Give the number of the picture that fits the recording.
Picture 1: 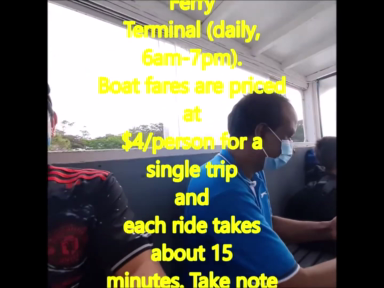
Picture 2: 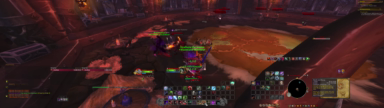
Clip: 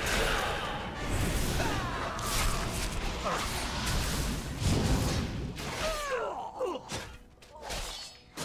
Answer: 2